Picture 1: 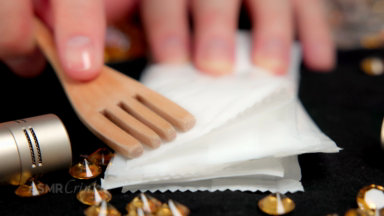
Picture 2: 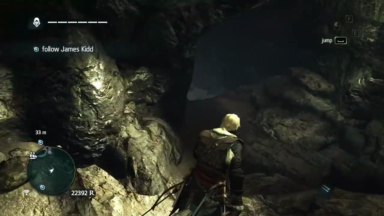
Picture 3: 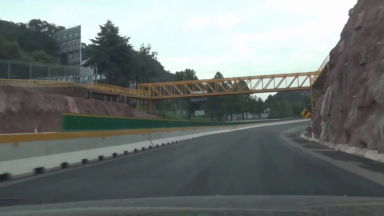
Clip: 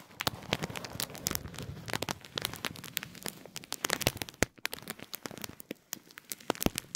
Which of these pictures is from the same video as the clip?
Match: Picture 1